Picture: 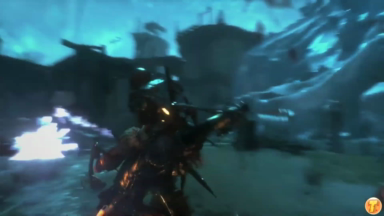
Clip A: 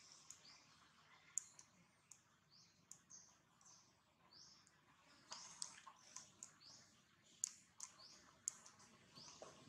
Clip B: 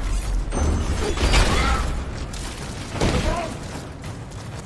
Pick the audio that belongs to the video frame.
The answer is B